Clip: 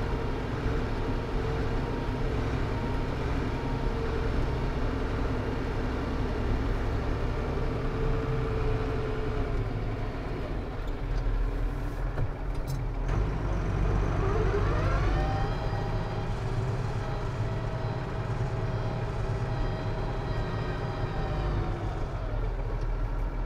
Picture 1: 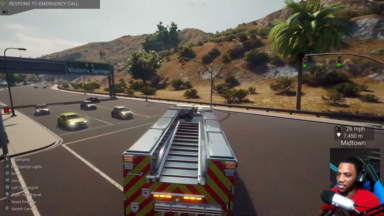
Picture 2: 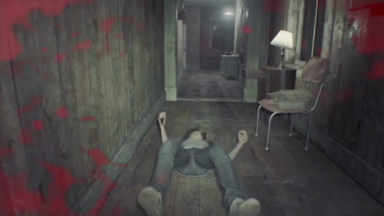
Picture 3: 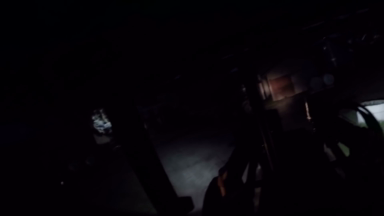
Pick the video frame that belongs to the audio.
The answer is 3